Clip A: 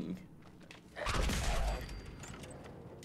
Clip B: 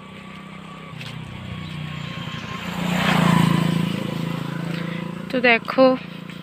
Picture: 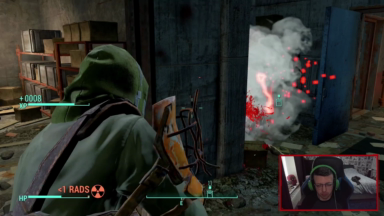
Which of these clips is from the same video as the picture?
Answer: A